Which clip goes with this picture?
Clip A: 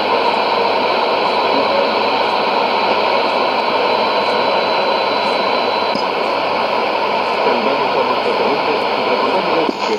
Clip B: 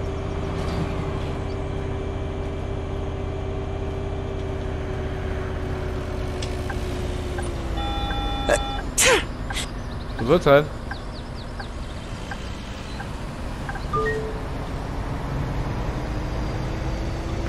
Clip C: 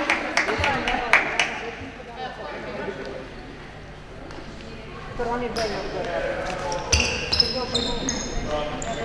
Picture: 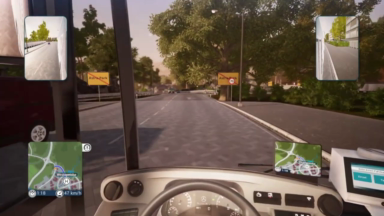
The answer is B